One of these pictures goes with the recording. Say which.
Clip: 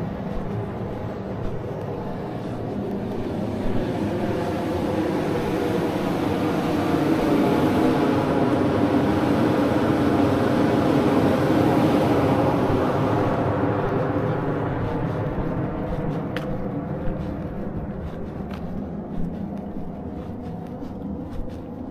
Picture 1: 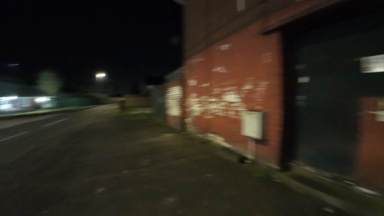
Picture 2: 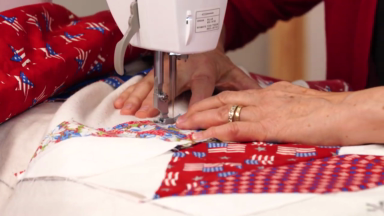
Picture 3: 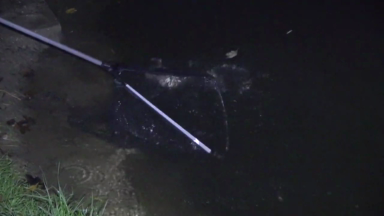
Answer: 1